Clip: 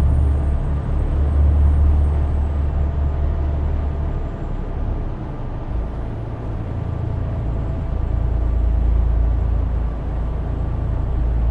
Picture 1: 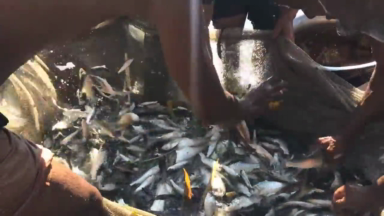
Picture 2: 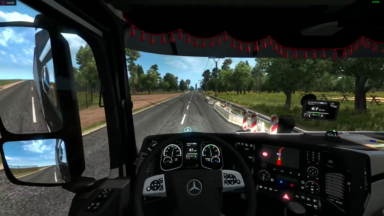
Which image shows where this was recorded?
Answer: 2